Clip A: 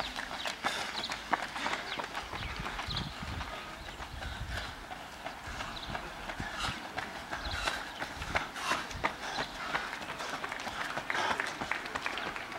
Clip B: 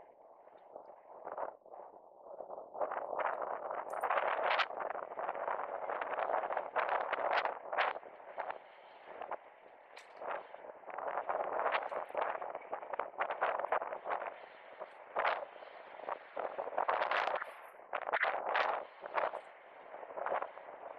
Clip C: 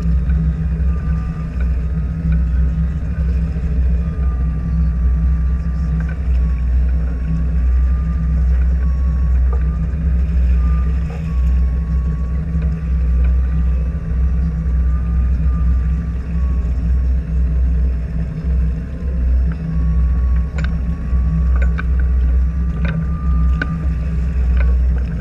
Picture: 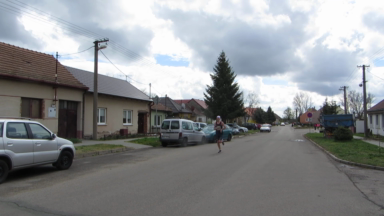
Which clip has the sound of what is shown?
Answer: A